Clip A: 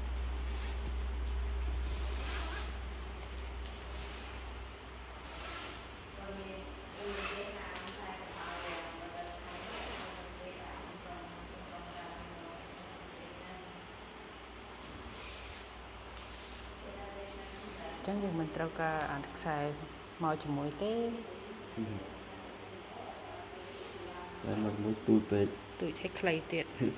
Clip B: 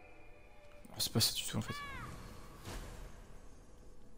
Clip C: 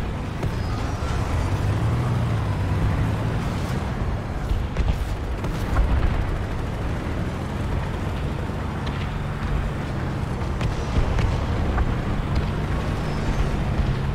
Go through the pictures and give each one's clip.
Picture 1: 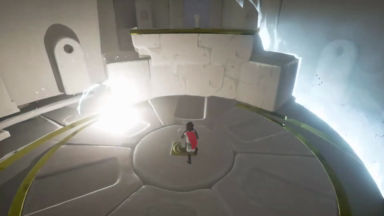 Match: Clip B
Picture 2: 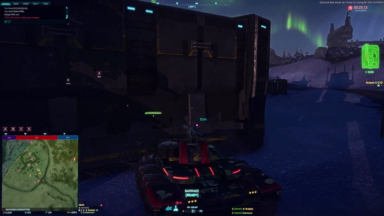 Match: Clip C